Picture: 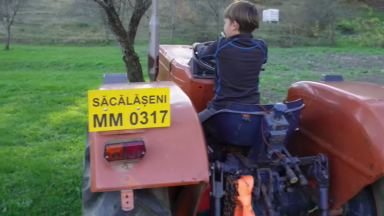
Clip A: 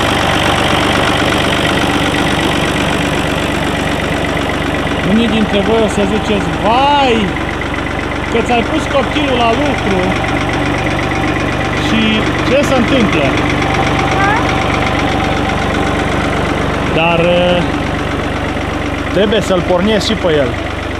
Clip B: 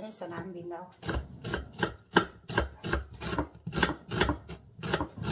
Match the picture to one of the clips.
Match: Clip A